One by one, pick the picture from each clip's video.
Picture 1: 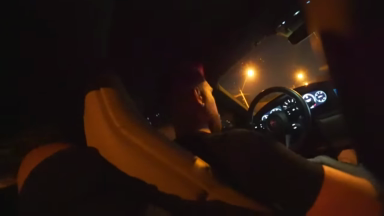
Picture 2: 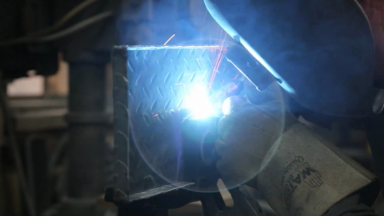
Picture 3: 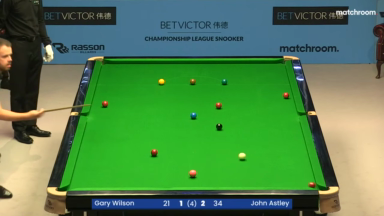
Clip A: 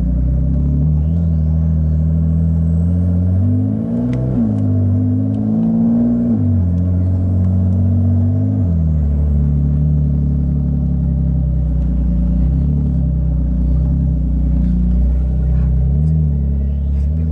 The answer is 1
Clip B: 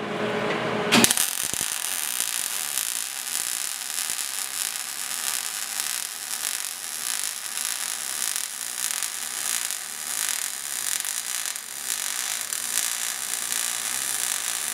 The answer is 2